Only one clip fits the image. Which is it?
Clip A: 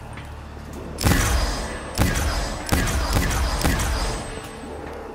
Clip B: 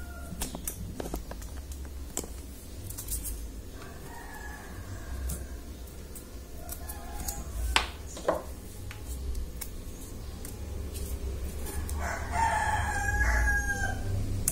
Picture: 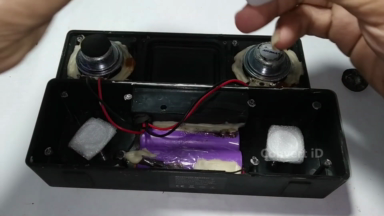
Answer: B